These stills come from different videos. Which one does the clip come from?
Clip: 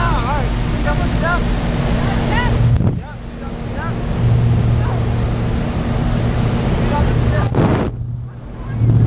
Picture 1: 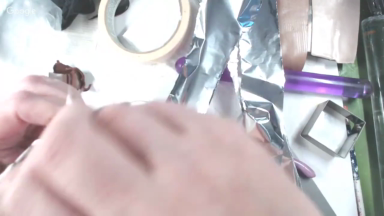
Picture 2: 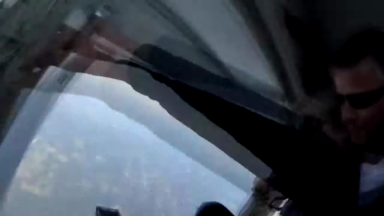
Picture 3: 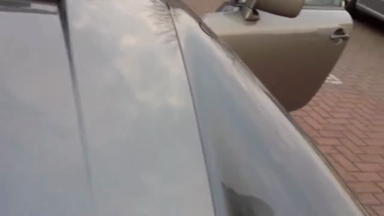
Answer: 2